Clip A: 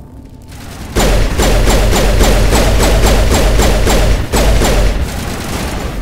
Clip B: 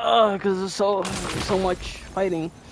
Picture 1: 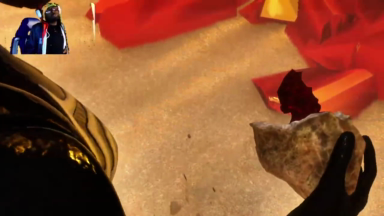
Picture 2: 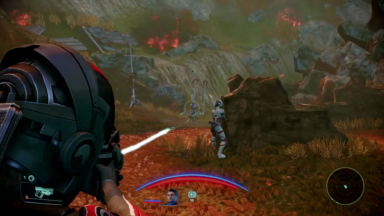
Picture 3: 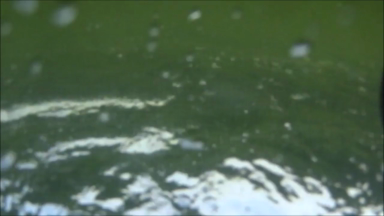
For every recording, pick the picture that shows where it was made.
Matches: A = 2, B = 1